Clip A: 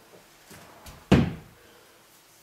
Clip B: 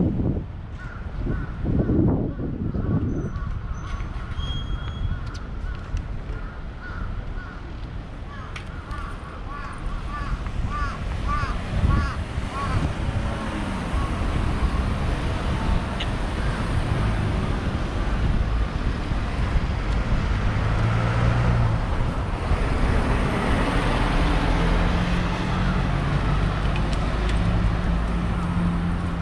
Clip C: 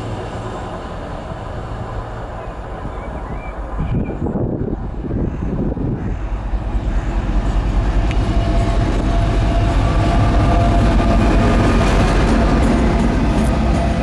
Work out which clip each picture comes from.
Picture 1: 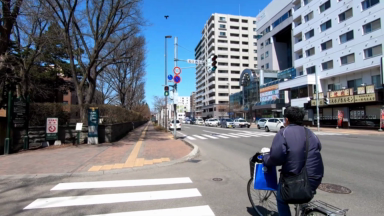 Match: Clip B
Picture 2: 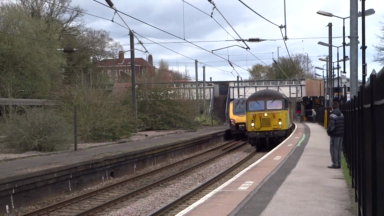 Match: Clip C